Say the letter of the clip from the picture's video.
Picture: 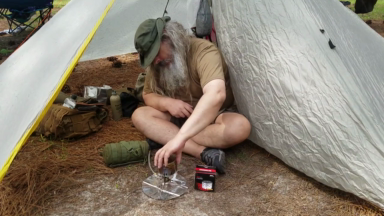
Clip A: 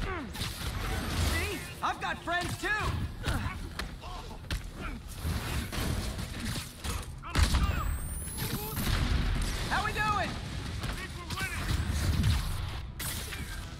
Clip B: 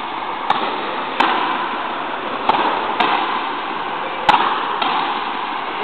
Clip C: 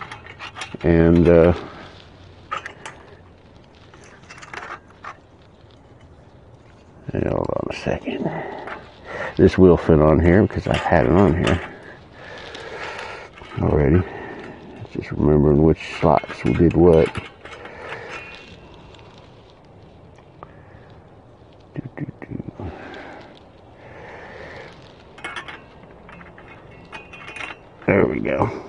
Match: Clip C